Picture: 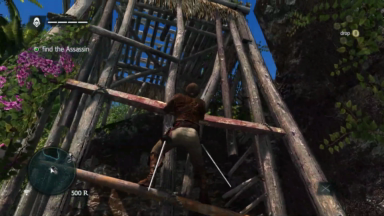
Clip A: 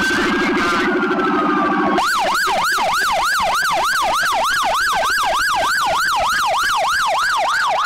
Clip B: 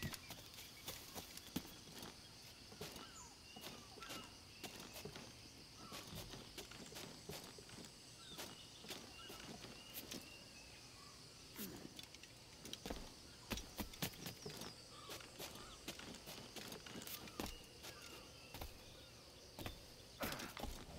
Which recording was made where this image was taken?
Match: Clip B